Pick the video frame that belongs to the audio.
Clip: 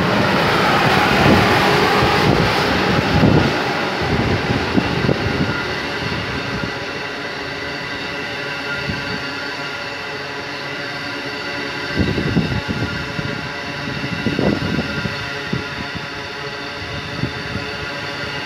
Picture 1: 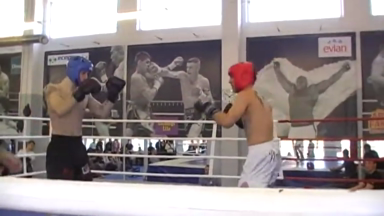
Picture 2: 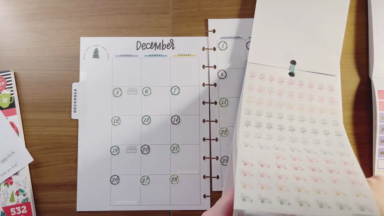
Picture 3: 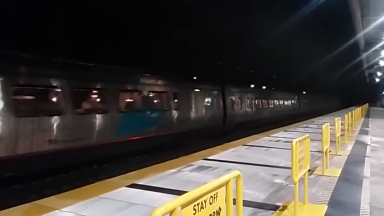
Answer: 3